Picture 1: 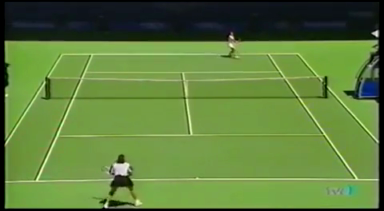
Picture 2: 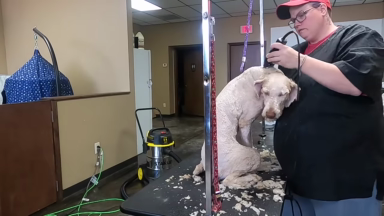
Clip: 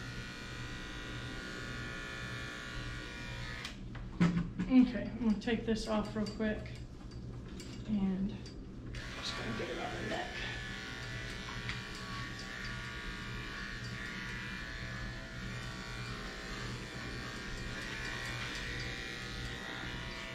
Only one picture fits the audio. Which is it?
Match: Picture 2